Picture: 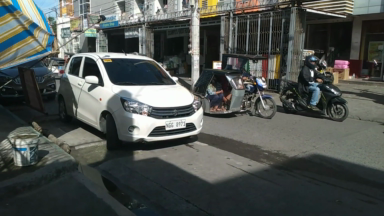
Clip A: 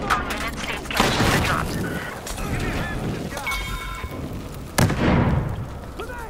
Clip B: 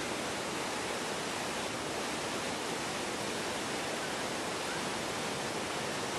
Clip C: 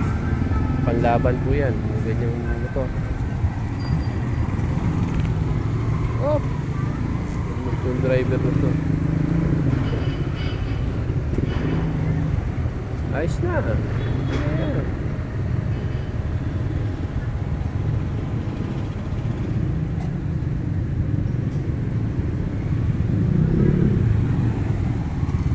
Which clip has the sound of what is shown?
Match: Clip C